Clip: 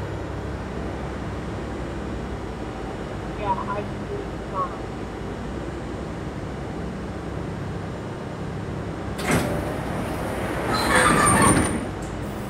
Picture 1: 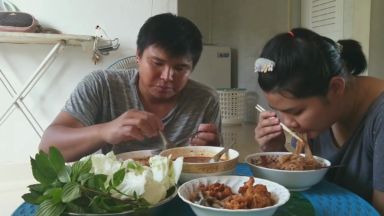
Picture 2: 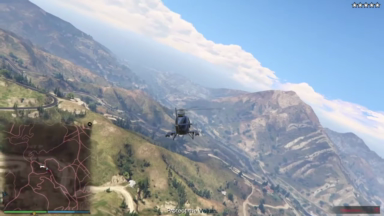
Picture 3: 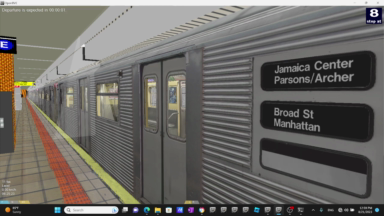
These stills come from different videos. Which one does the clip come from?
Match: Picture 3